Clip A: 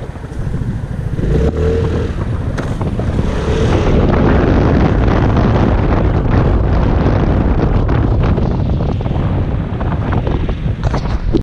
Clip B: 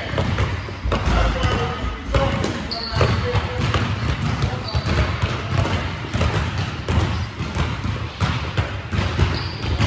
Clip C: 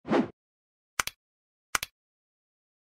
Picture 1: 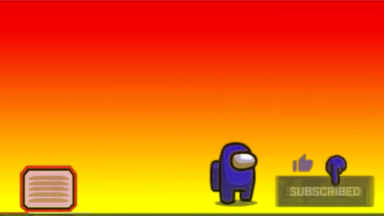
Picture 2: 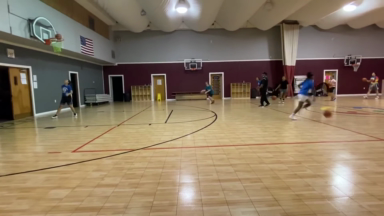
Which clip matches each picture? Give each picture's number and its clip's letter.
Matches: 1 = C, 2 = B